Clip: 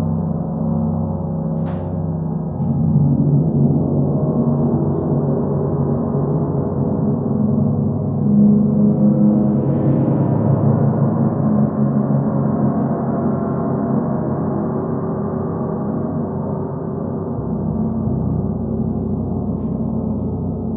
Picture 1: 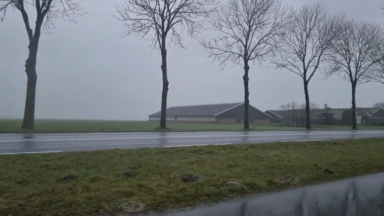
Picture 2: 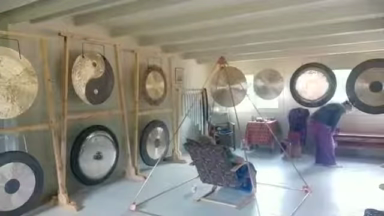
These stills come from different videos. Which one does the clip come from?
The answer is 2